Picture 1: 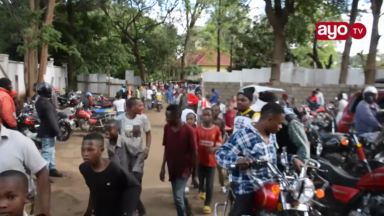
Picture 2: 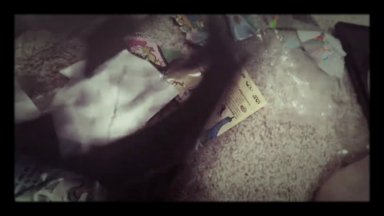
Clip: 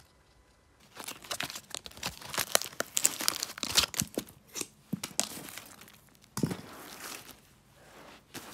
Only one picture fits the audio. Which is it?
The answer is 2